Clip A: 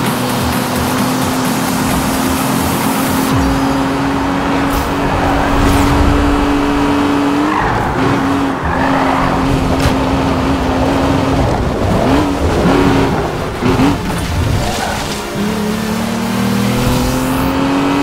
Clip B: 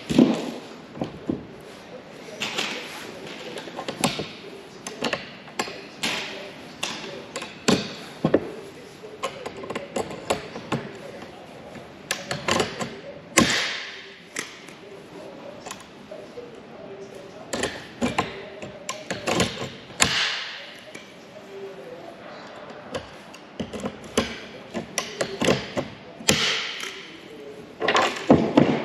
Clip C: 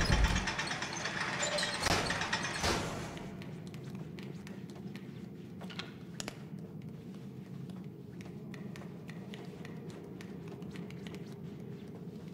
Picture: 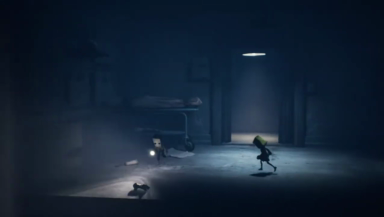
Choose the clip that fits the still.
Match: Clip C